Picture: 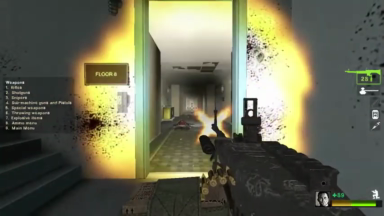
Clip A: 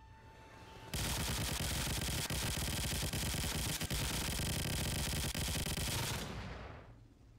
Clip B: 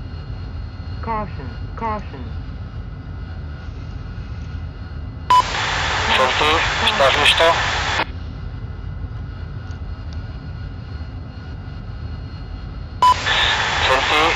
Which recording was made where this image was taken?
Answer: A